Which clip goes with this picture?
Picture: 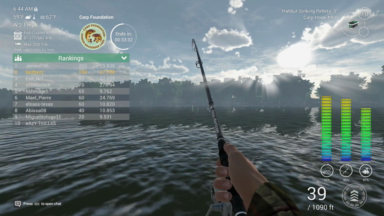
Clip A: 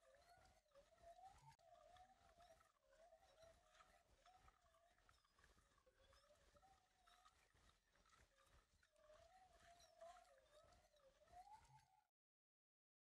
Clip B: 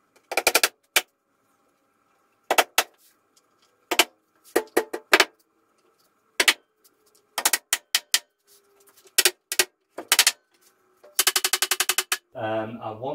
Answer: A